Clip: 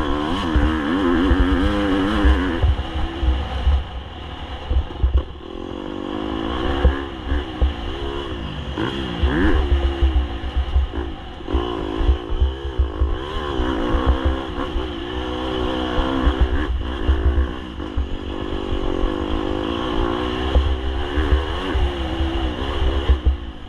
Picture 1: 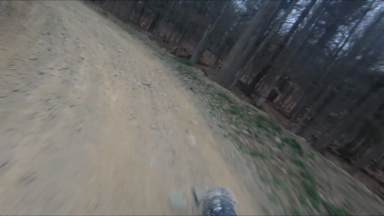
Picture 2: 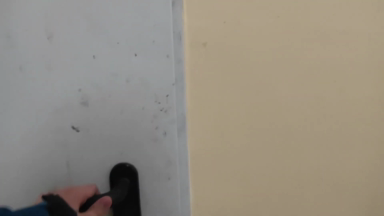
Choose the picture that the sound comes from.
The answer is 1